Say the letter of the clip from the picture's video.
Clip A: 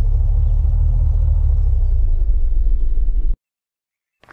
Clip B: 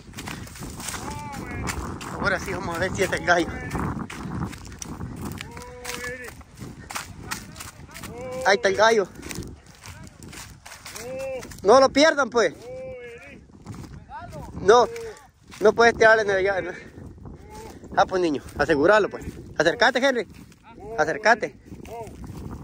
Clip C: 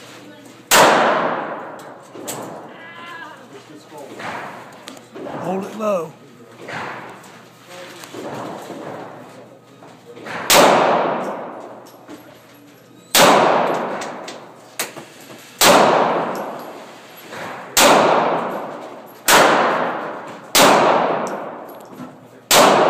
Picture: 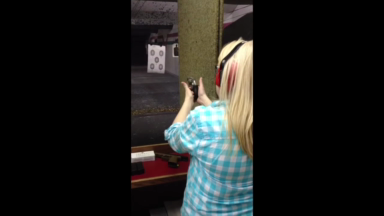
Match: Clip C